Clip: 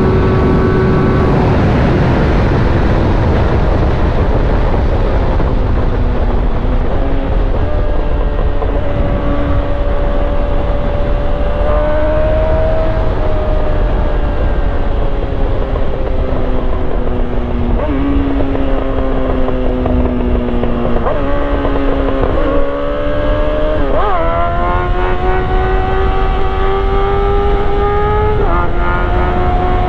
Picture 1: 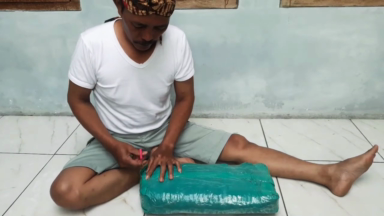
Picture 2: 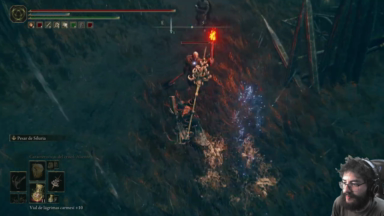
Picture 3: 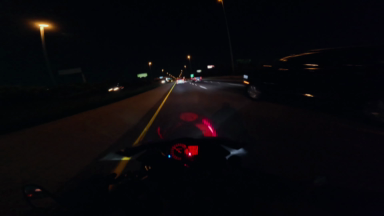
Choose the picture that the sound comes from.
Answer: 3